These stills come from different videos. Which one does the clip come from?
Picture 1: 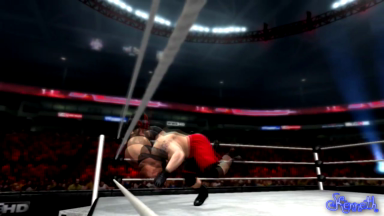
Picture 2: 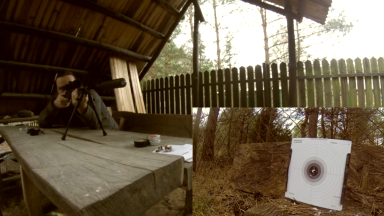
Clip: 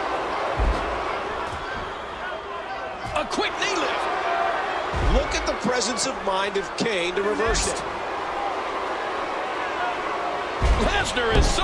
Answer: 1